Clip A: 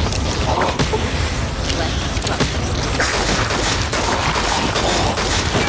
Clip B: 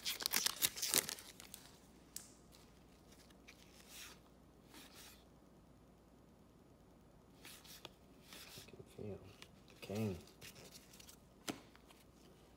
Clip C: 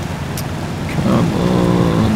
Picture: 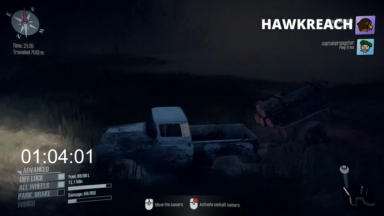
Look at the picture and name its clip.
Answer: C